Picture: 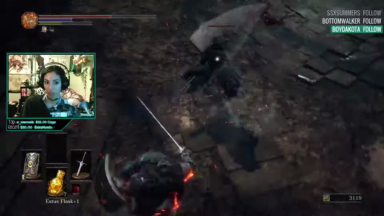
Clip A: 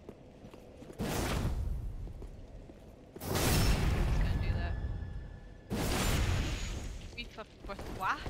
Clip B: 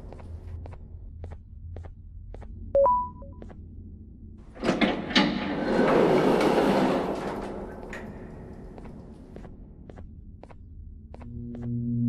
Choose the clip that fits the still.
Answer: A